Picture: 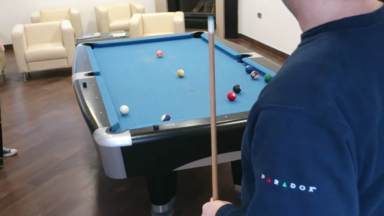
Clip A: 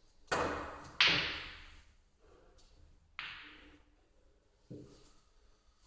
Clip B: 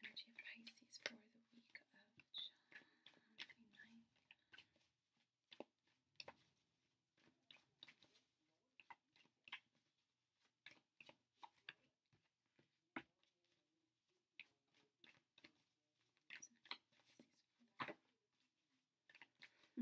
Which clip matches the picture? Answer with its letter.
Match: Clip A